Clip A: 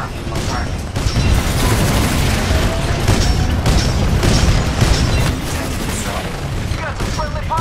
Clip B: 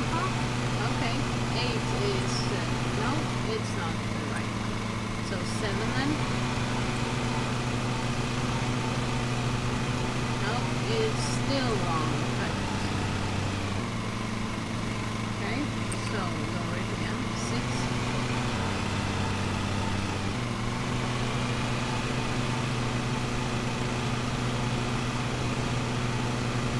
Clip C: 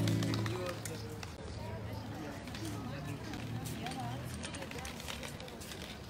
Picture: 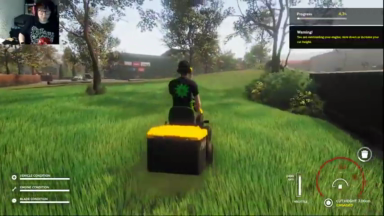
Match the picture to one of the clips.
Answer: B